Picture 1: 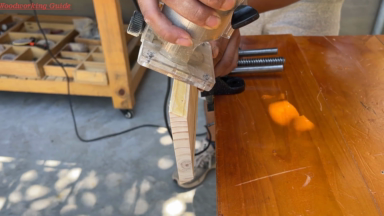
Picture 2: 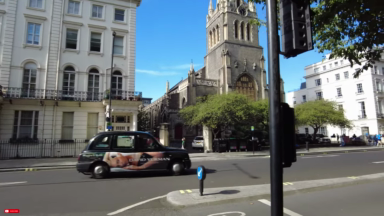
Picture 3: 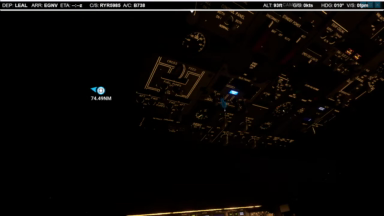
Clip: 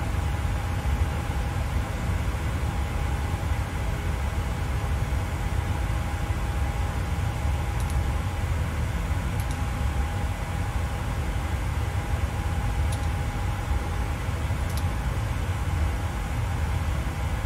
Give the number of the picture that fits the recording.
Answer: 3